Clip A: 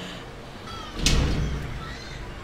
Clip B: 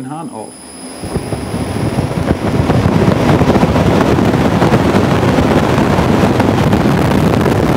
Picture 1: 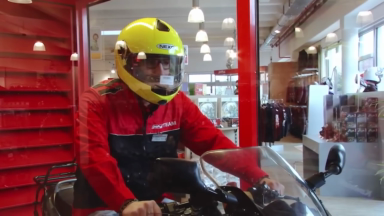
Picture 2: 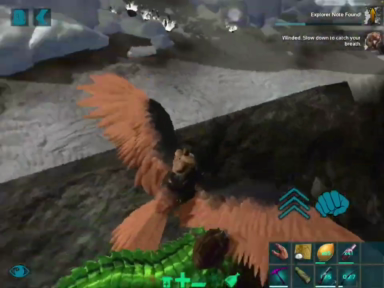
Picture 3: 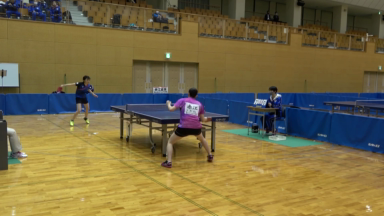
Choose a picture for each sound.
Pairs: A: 2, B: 1